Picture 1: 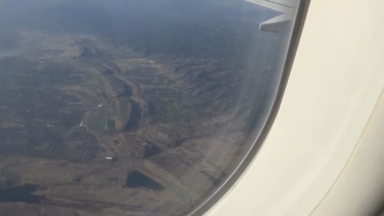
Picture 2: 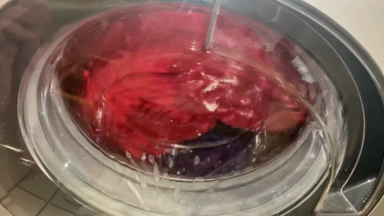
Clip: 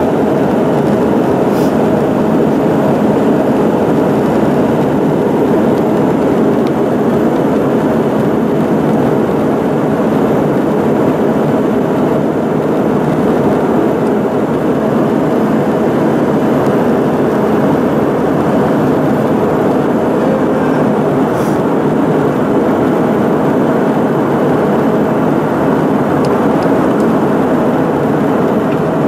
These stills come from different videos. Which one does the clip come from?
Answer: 1